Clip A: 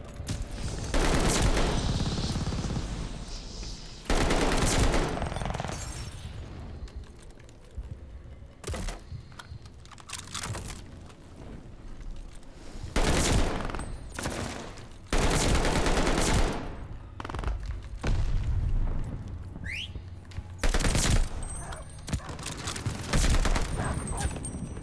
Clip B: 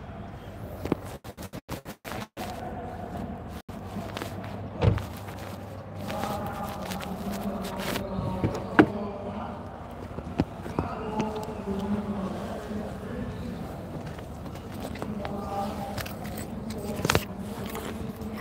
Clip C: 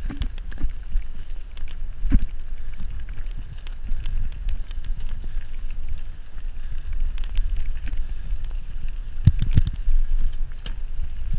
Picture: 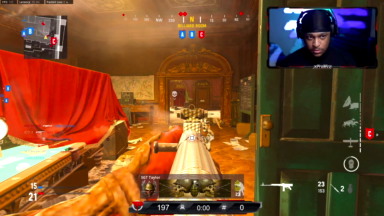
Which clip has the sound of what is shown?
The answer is A